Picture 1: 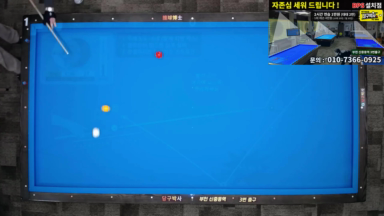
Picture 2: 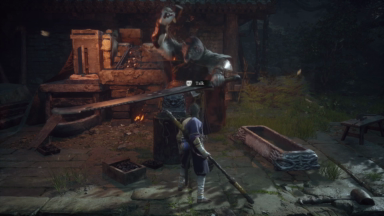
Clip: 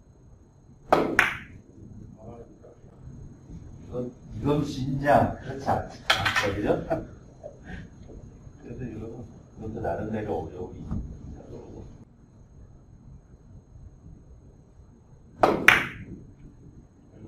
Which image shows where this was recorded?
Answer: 1